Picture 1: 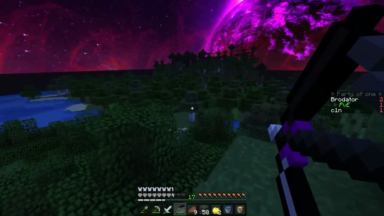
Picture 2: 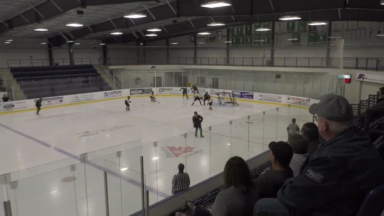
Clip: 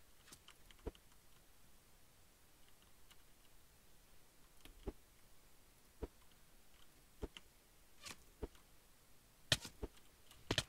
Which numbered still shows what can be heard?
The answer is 1